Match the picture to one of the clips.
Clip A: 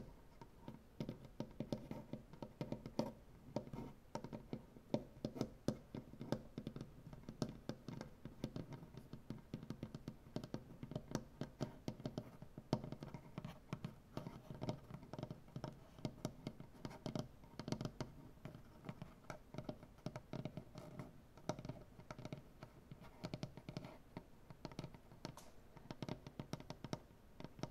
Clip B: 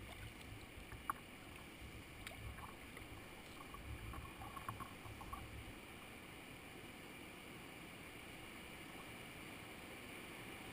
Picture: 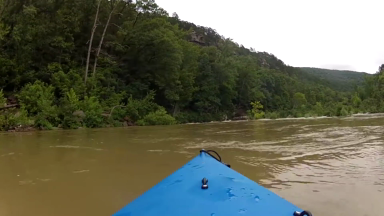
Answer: B